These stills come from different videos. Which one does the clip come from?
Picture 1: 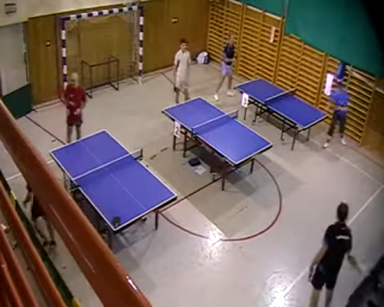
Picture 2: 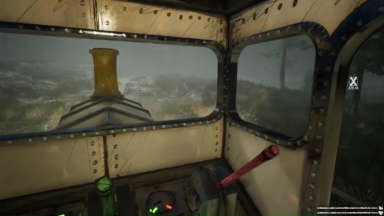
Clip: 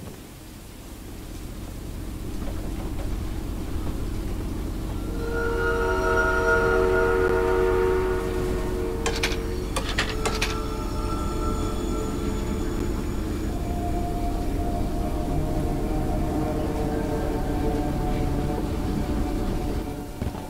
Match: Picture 2